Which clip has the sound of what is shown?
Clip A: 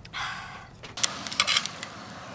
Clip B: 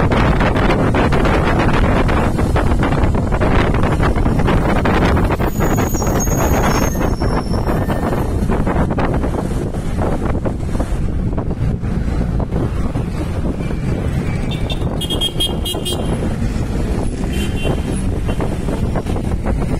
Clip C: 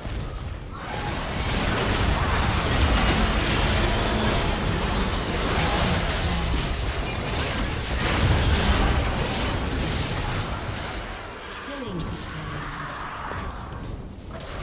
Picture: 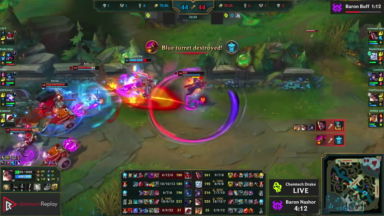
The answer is C